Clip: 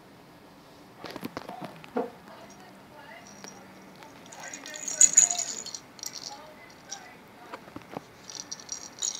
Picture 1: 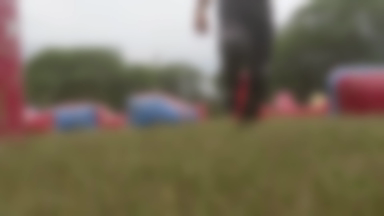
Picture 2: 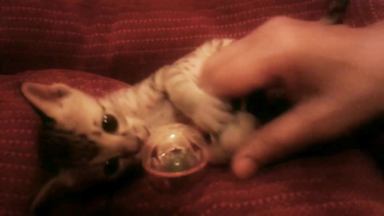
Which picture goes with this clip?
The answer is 2